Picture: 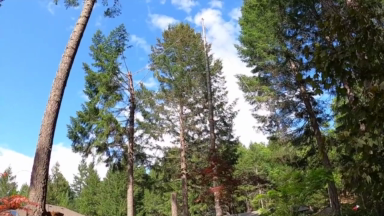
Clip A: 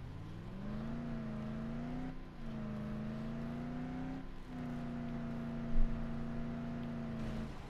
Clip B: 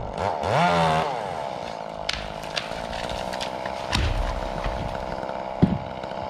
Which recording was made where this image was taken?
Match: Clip B